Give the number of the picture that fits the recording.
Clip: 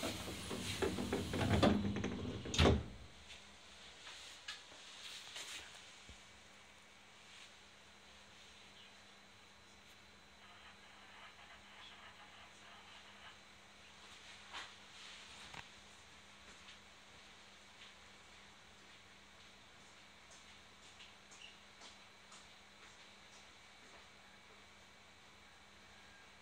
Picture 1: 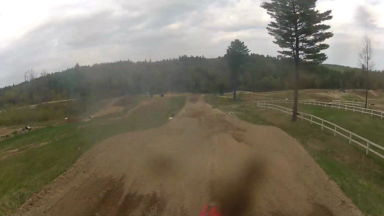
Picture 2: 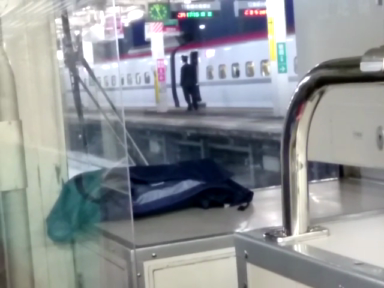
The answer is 2